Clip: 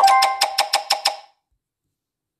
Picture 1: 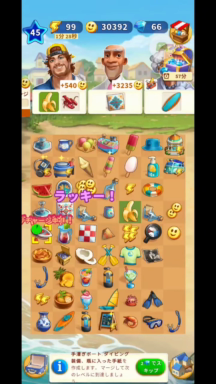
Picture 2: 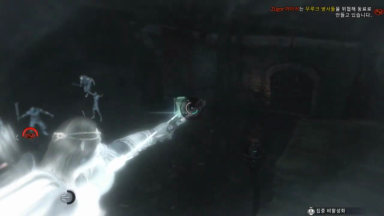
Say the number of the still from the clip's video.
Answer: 1